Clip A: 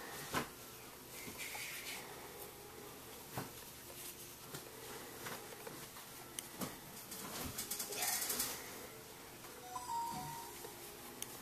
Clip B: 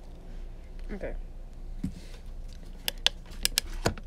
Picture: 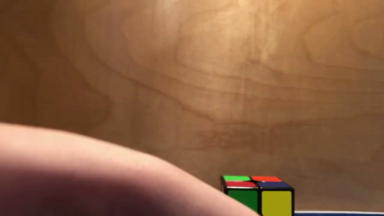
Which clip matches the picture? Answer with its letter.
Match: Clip B